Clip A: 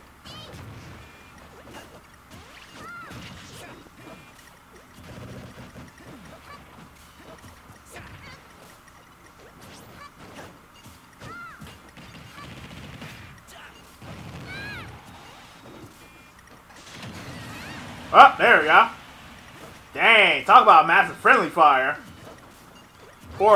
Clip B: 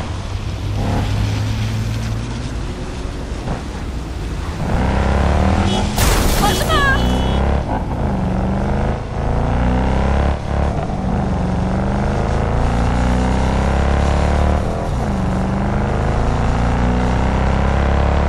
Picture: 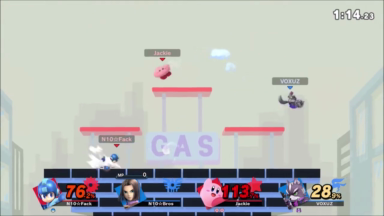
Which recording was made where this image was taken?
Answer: A